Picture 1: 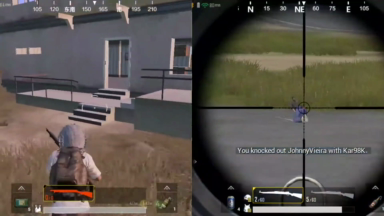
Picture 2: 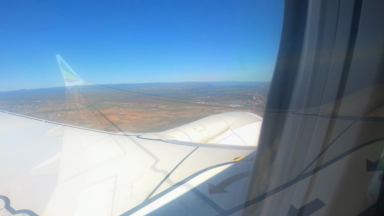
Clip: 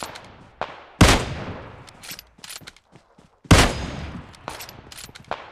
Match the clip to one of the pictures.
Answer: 1